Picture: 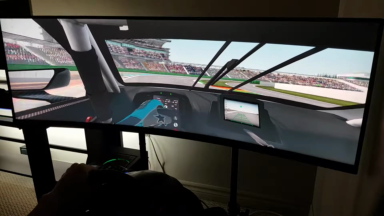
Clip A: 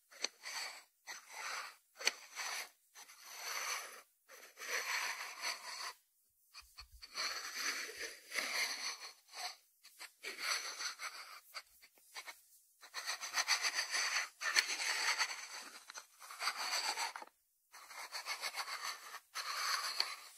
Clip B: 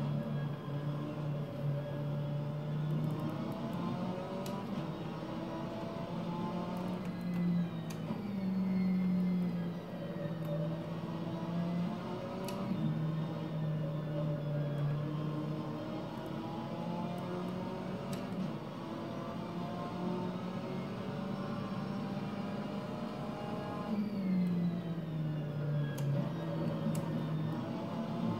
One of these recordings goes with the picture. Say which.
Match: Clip B